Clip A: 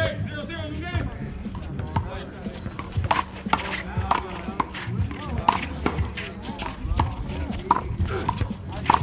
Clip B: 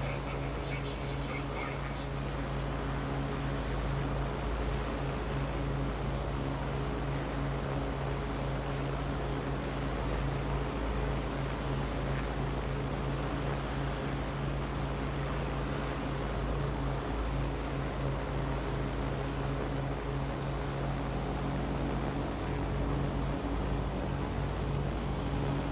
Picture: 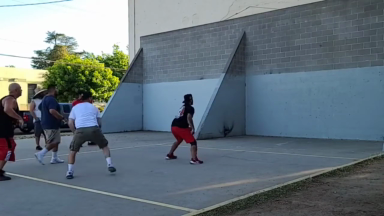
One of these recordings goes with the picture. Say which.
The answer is A